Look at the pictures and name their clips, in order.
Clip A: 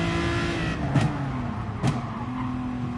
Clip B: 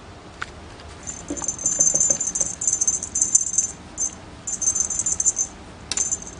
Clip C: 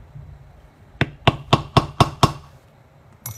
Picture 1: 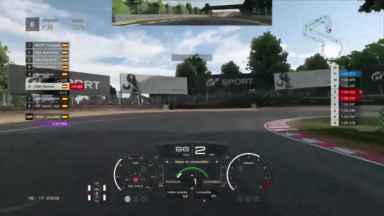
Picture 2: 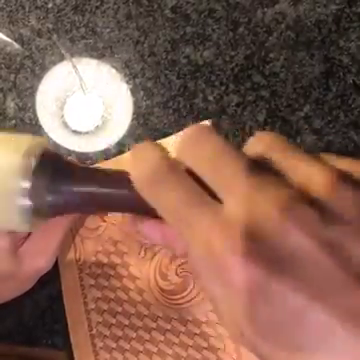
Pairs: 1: A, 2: C